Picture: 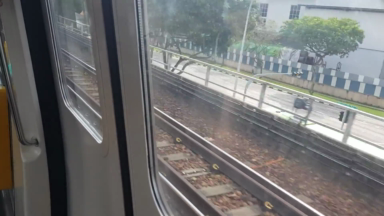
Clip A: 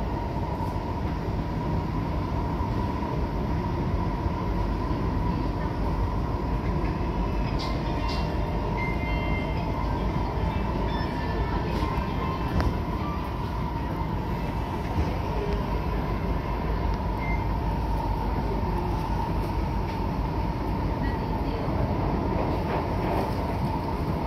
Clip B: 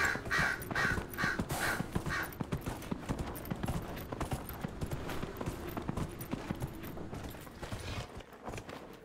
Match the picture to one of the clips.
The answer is A